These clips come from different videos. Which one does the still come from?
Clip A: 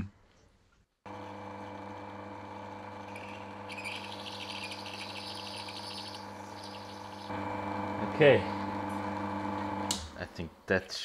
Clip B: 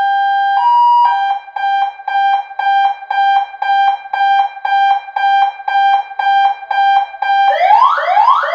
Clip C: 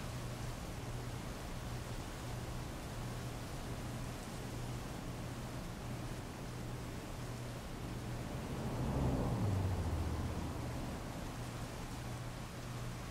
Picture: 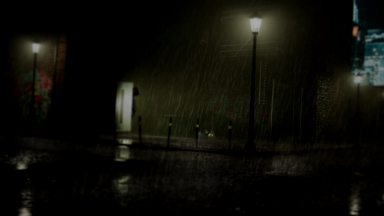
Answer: C